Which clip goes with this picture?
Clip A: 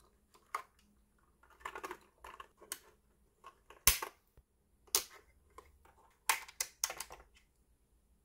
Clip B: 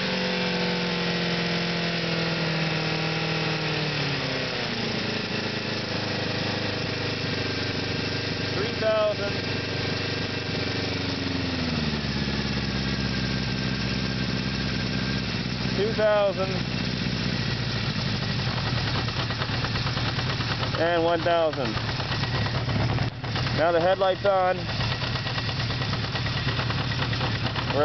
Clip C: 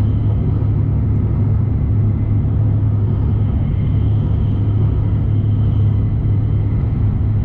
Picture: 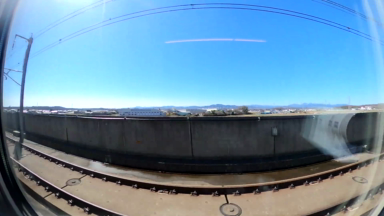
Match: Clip C